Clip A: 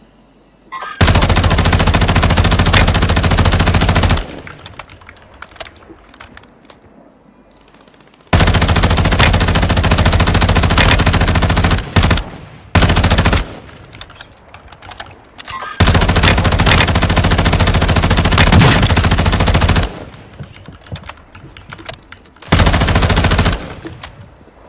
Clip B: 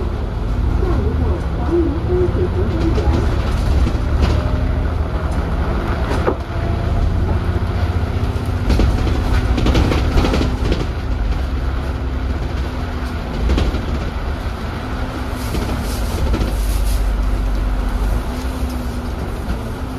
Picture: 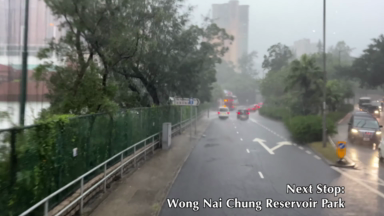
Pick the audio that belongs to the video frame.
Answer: B